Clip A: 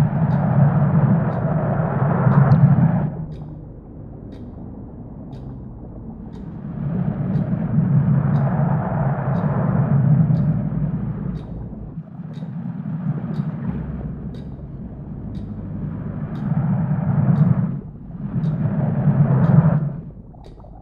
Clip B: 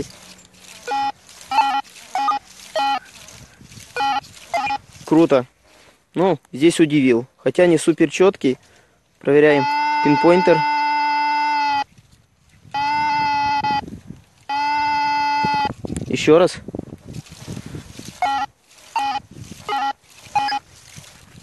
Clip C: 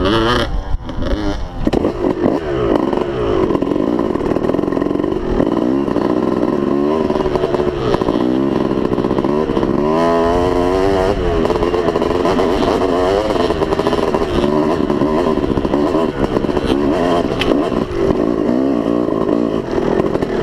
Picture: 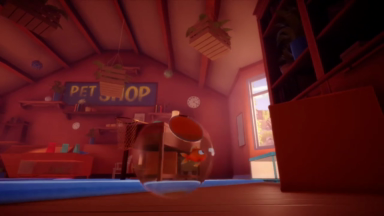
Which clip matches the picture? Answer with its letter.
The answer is A